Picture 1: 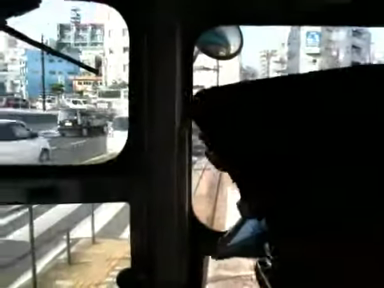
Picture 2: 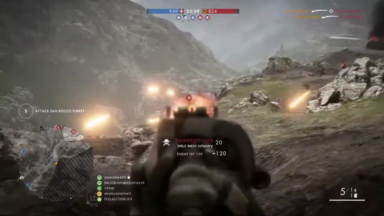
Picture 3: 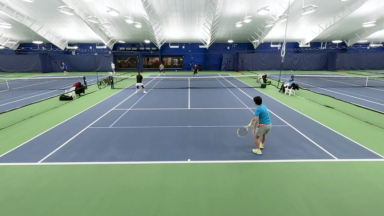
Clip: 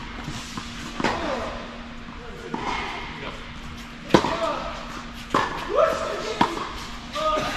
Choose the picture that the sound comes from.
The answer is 3